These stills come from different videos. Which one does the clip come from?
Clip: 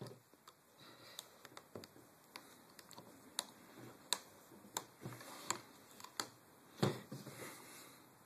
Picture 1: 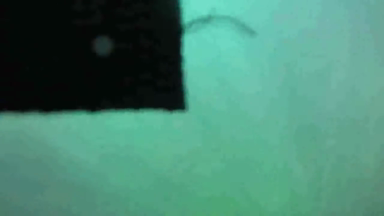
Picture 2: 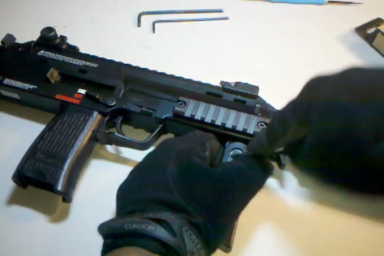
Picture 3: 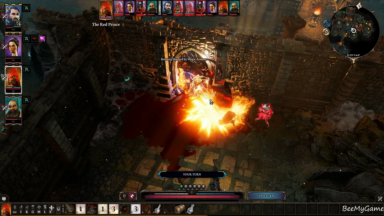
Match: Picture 2